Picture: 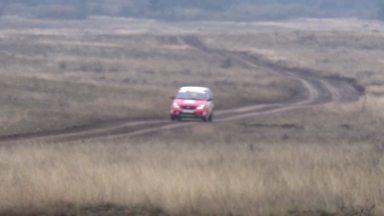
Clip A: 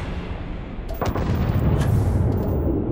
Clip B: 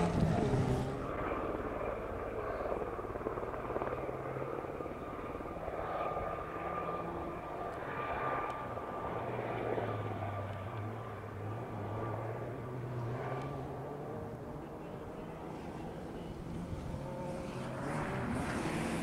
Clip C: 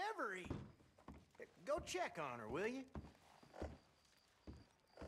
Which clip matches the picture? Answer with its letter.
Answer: B